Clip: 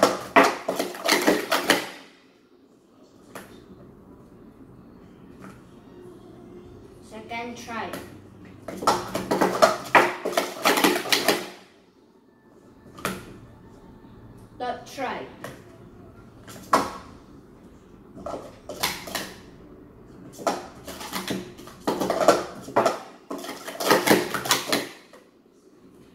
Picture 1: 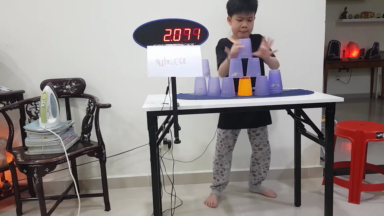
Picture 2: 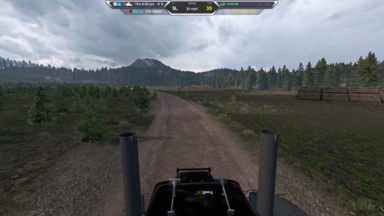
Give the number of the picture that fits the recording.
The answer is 1